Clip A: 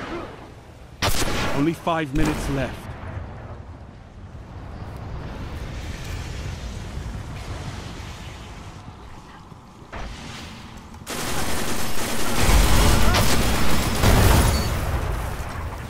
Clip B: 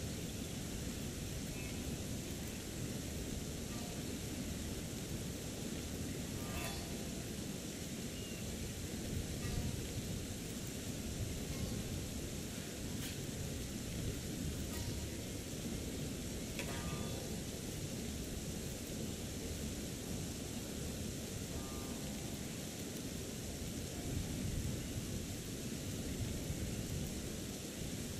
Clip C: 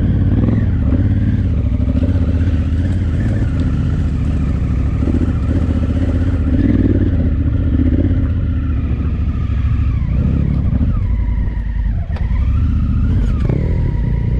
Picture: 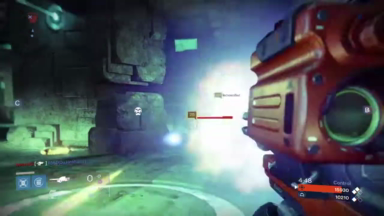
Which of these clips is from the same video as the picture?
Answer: A